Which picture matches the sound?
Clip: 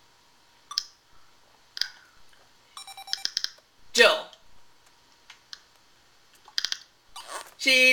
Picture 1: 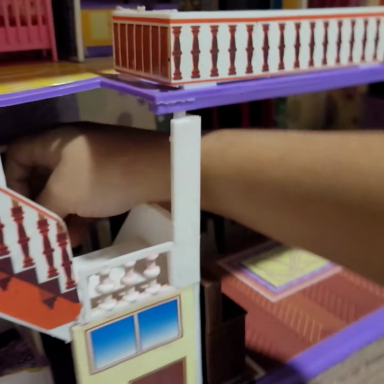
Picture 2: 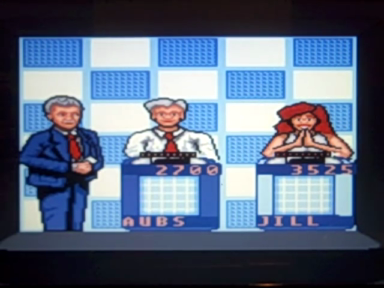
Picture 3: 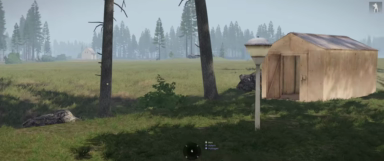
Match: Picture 2